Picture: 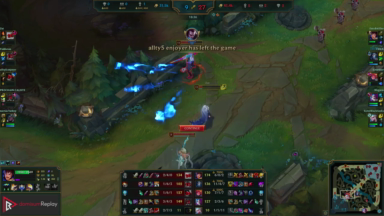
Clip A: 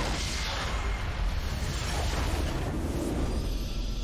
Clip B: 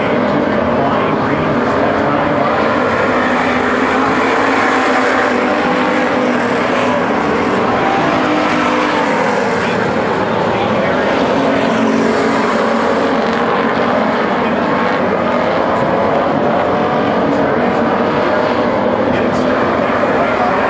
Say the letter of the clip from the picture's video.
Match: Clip A